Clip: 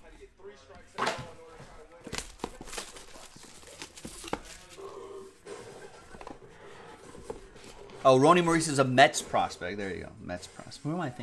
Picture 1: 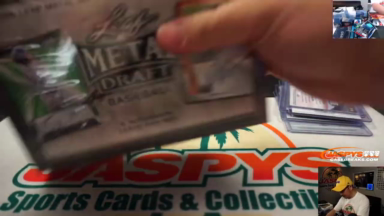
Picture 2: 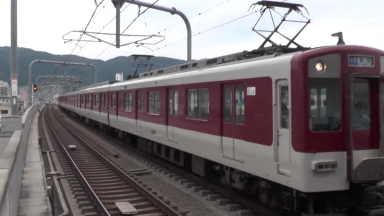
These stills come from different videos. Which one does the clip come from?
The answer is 1